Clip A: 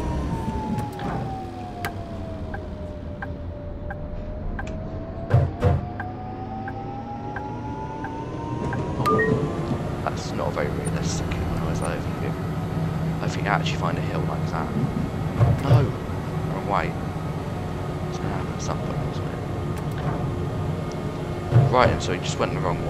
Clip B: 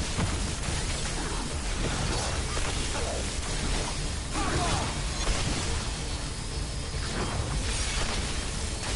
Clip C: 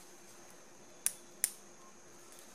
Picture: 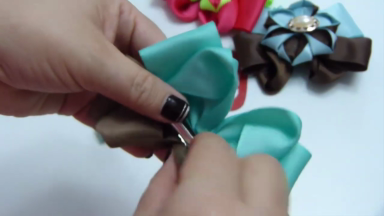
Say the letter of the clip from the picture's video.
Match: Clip C